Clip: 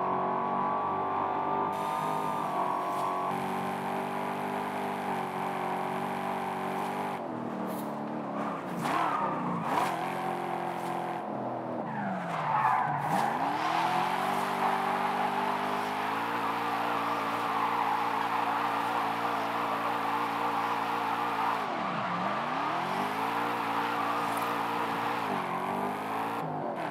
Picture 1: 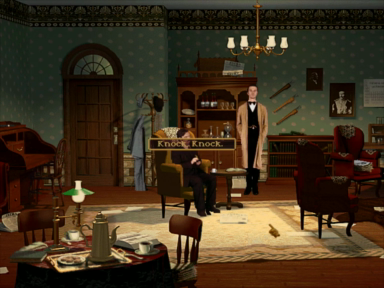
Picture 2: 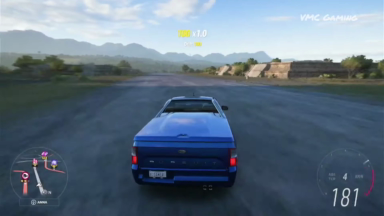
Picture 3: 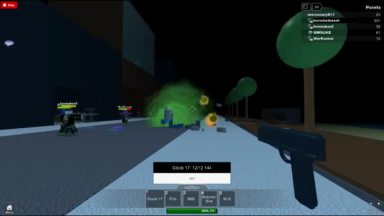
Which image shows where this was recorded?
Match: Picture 2